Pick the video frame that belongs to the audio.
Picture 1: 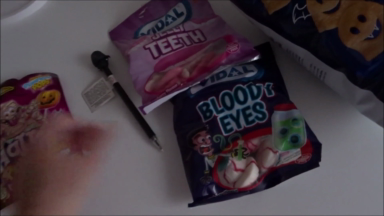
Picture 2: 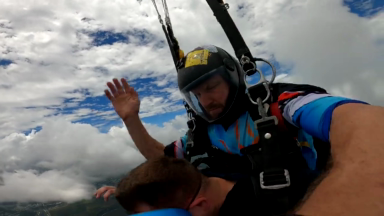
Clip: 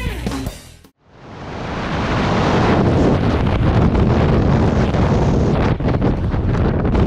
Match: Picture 2